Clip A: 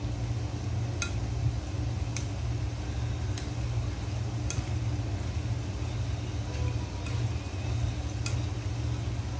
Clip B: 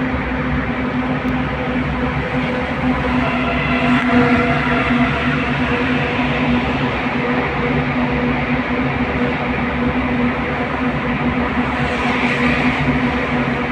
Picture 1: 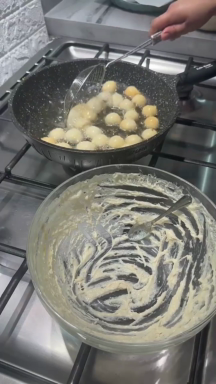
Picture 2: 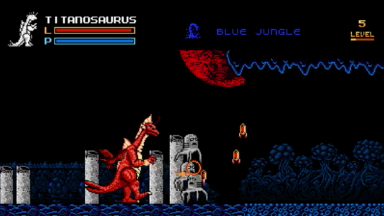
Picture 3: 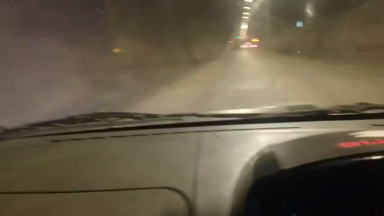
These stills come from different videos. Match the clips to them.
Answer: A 1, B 3